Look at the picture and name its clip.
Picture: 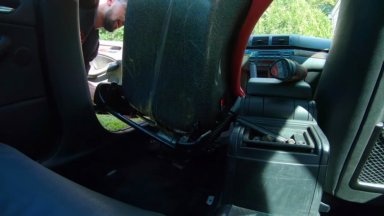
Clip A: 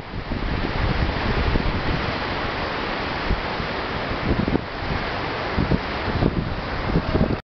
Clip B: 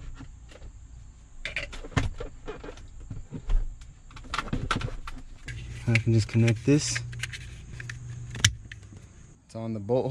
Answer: B